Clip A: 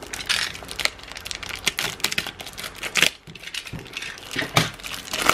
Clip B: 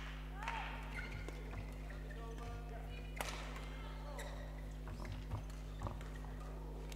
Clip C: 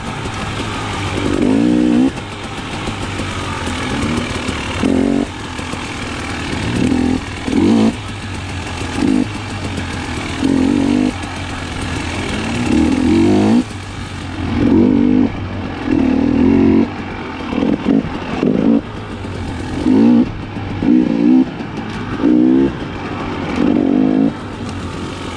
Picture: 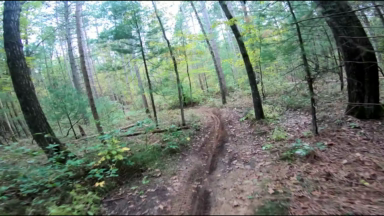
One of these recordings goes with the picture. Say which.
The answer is C